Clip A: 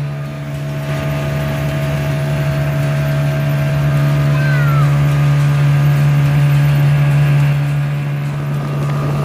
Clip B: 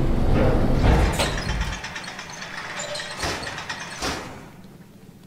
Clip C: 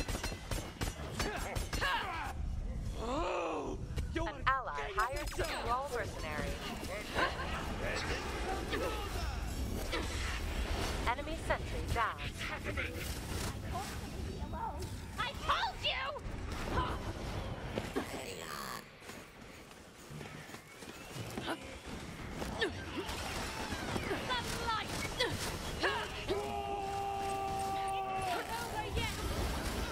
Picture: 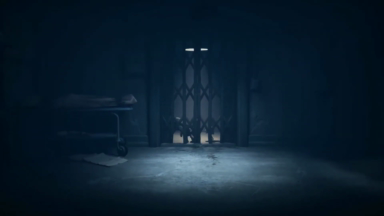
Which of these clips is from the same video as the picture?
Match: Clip B